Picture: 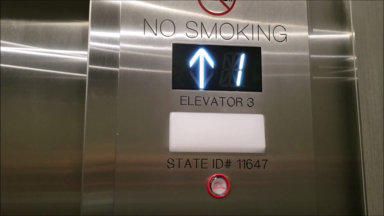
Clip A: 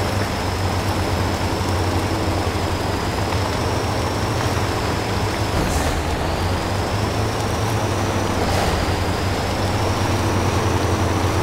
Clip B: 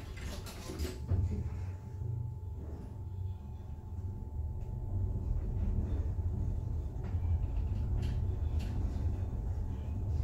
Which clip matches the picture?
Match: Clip B